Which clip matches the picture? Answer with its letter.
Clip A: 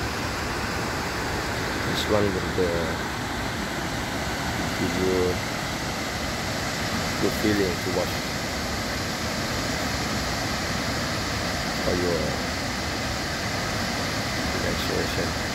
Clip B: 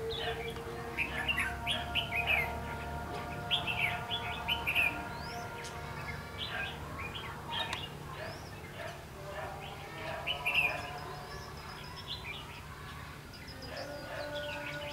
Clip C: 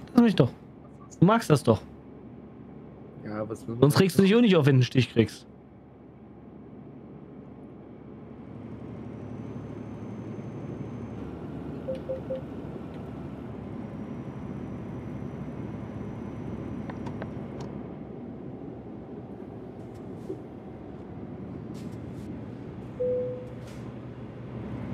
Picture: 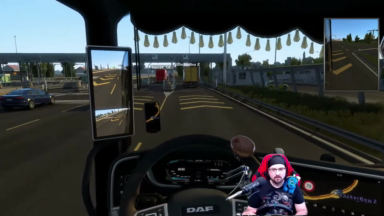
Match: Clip C